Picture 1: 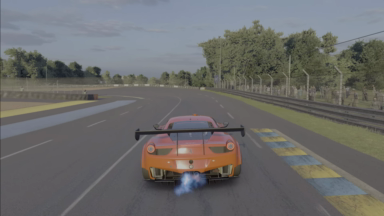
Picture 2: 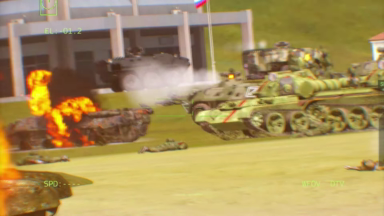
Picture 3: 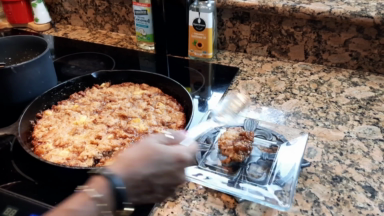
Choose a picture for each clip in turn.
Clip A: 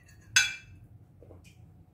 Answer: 3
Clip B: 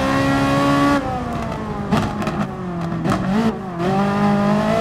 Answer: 1